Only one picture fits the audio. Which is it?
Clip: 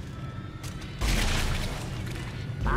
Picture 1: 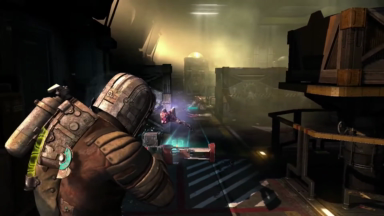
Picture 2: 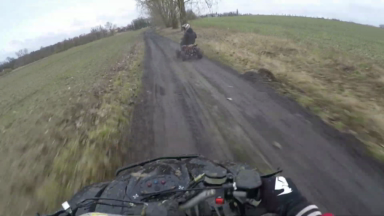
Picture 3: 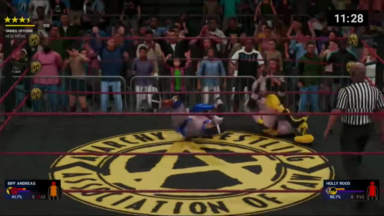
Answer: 1